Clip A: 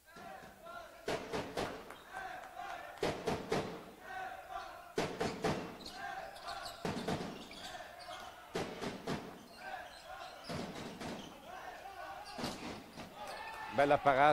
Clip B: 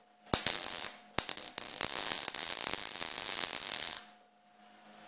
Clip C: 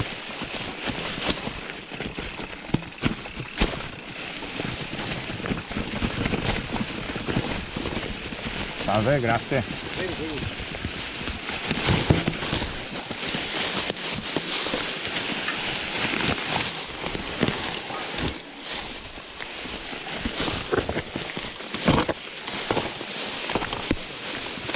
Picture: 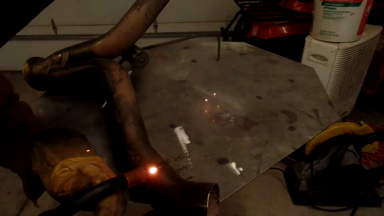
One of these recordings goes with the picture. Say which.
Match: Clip B